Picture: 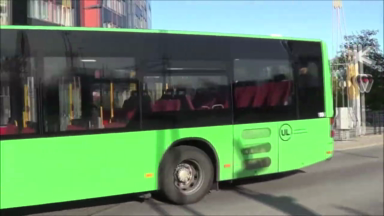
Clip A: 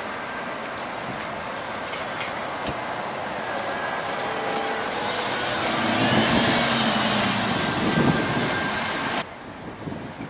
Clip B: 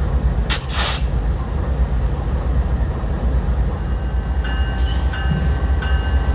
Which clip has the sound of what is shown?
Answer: A